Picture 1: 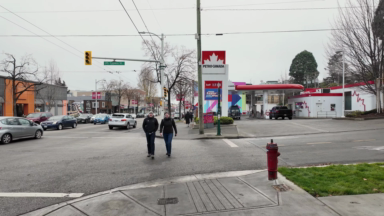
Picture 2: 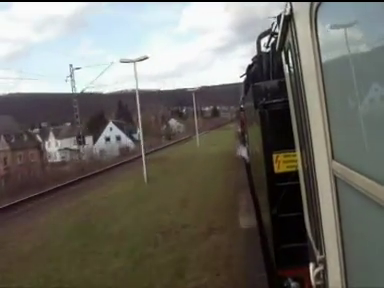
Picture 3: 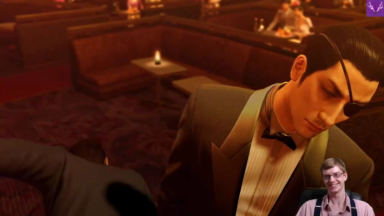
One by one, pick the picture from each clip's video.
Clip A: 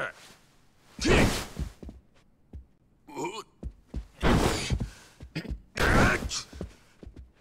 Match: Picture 3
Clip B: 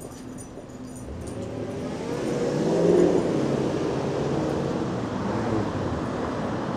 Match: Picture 1